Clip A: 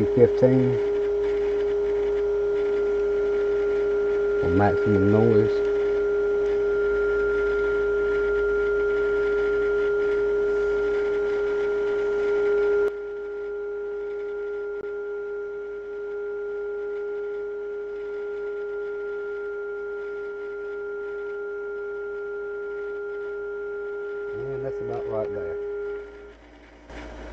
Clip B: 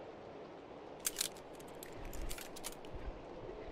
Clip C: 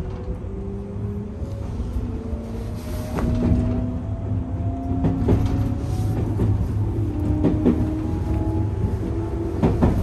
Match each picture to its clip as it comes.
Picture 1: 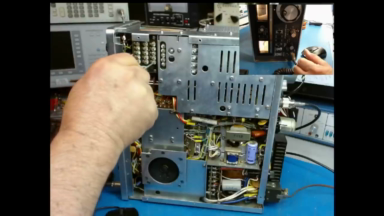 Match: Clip A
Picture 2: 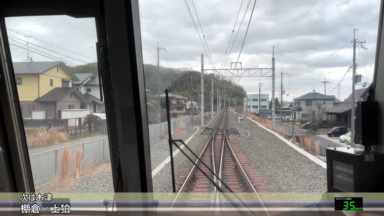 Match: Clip C